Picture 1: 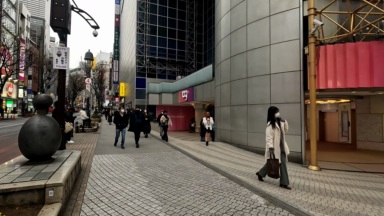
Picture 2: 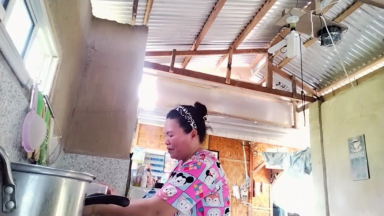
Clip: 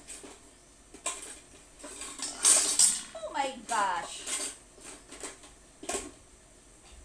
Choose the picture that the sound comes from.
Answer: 2